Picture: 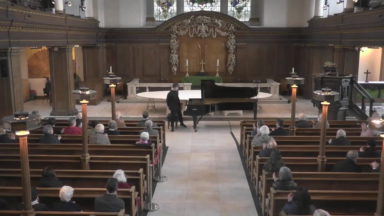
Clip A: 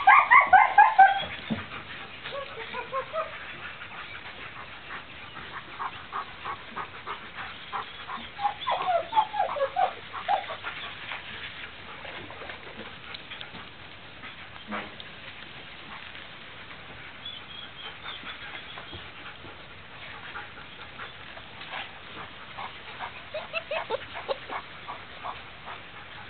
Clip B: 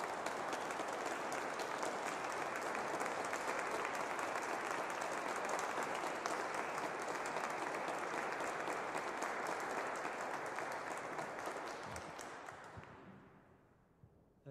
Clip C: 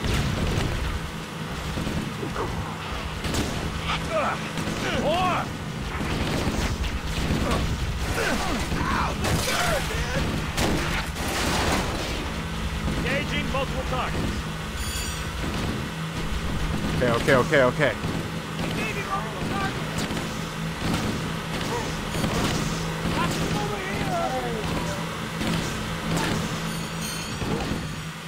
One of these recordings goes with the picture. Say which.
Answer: B